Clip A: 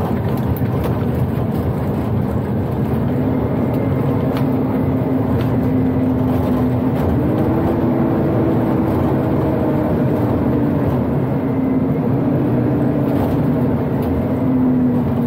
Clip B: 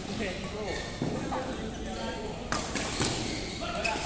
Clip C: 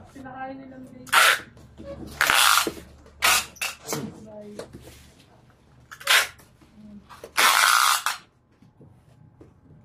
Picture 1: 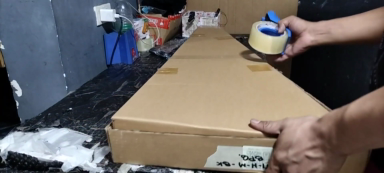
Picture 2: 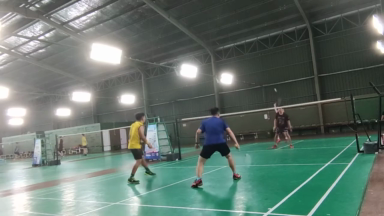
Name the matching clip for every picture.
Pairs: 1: C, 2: B